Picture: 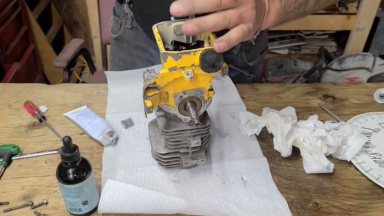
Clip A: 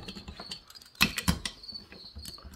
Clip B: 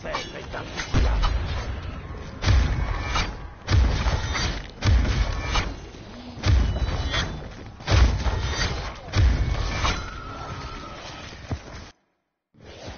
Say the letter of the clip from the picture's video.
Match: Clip A